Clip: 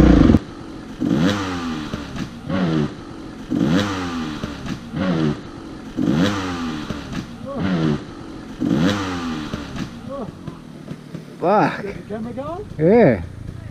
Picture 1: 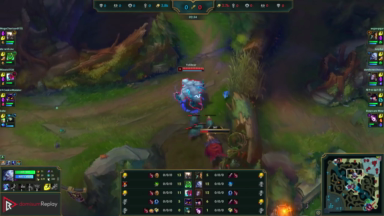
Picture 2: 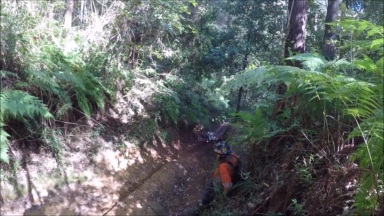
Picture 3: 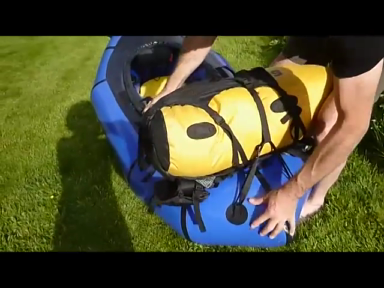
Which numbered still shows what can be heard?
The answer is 2